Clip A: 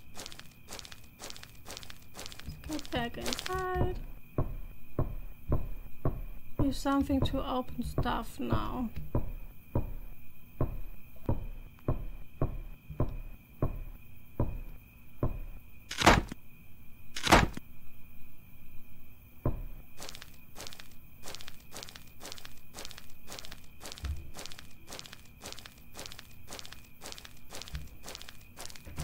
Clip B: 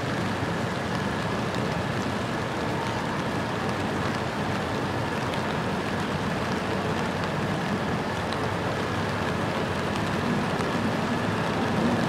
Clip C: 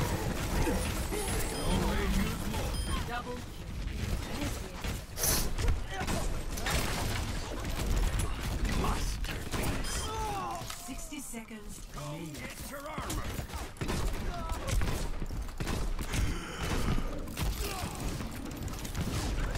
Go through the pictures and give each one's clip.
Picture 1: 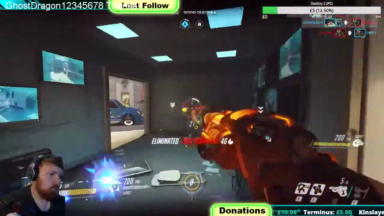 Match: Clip C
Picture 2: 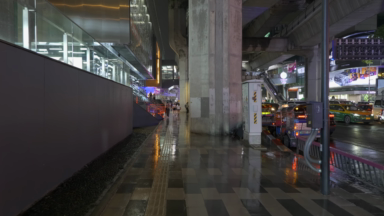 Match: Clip B